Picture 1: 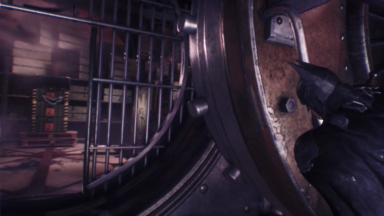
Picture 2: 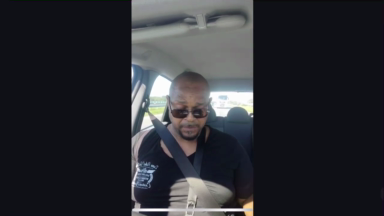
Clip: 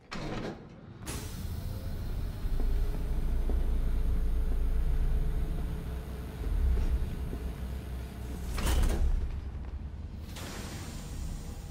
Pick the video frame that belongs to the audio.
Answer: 1